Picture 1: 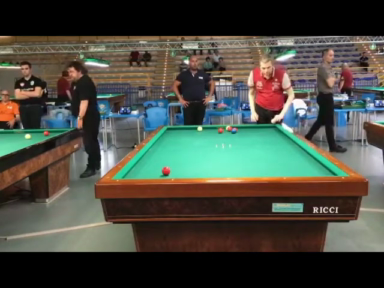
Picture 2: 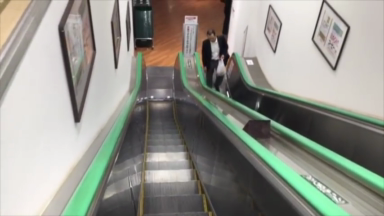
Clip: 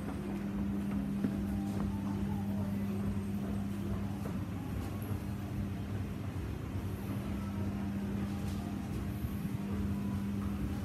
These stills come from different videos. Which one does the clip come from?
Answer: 2